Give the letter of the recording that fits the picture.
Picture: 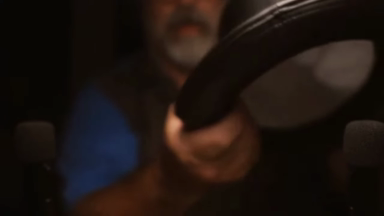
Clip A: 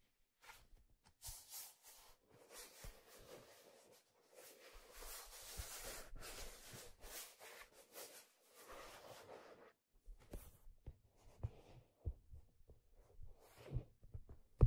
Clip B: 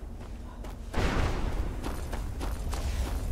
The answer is A